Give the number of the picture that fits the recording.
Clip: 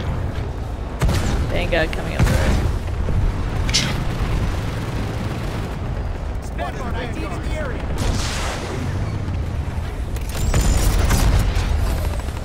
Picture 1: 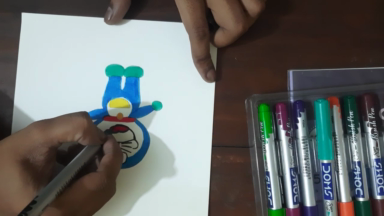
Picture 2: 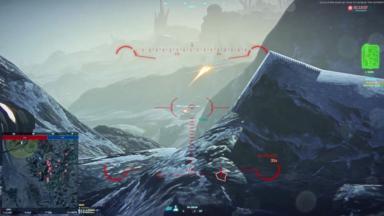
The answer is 2